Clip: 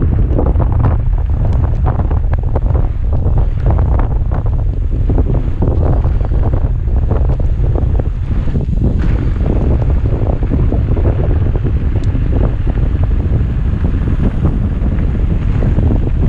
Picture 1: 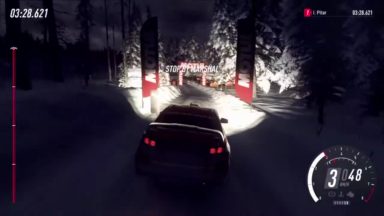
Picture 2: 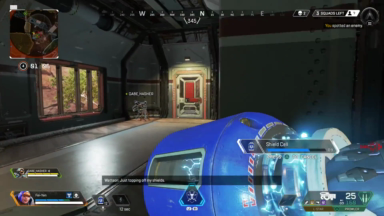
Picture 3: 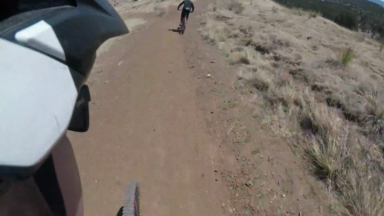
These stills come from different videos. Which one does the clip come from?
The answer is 3